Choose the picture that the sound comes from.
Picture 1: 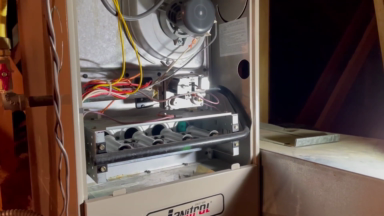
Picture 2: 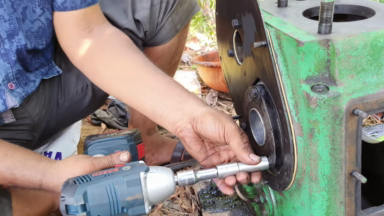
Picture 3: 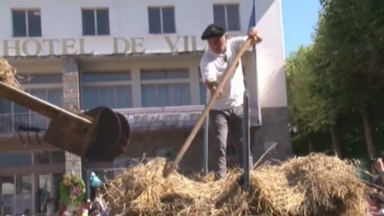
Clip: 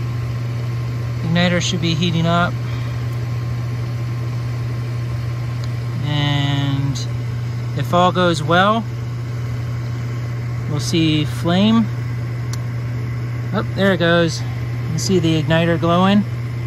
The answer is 1